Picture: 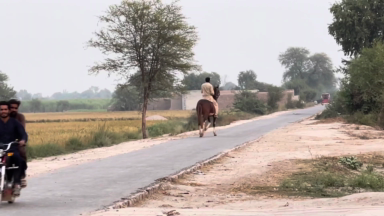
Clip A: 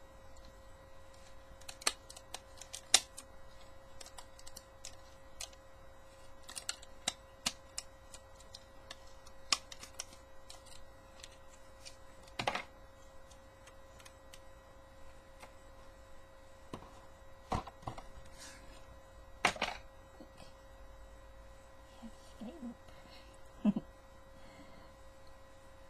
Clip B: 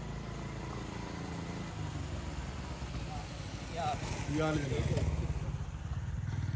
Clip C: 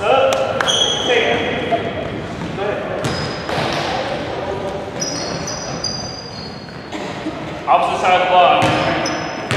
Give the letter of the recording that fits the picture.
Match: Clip B